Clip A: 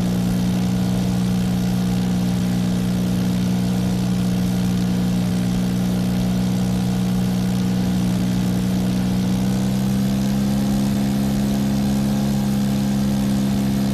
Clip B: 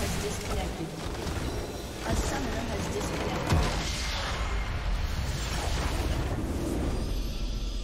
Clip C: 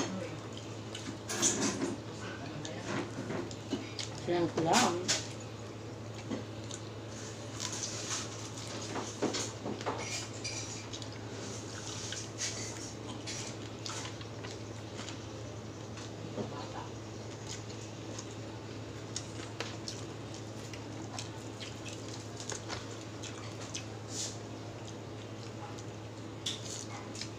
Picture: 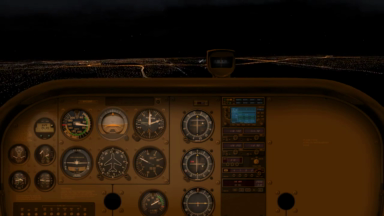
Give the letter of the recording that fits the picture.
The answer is A